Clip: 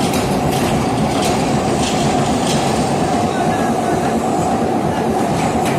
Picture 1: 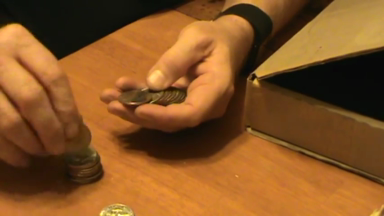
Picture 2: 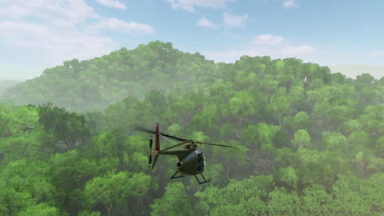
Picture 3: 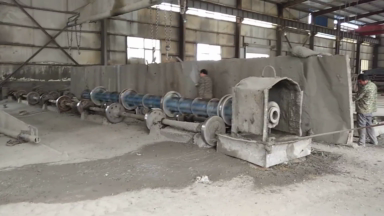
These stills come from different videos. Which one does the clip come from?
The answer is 3